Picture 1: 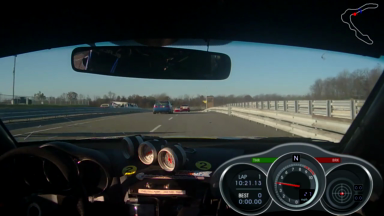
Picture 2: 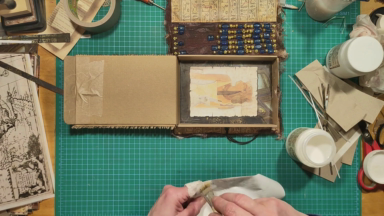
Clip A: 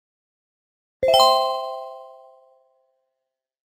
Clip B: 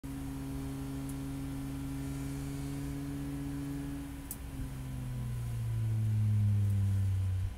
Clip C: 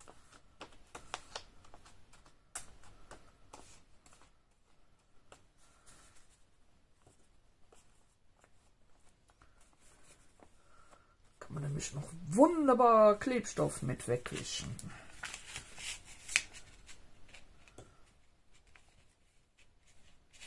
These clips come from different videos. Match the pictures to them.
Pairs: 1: B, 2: C